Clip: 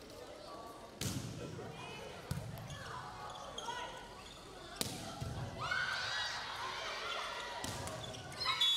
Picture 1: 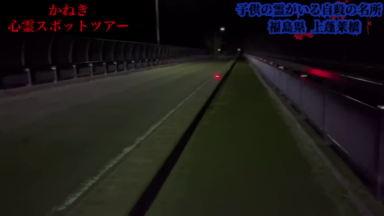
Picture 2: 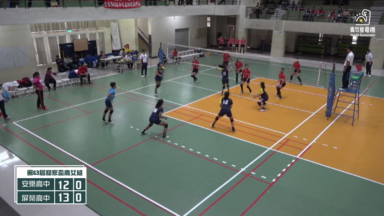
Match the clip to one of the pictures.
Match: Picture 2